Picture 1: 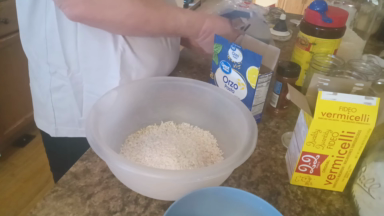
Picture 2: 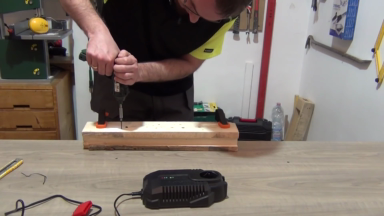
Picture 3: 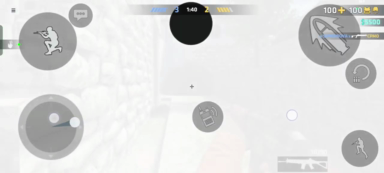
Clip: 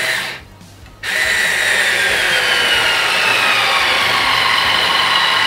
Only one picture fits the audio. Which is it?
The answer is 2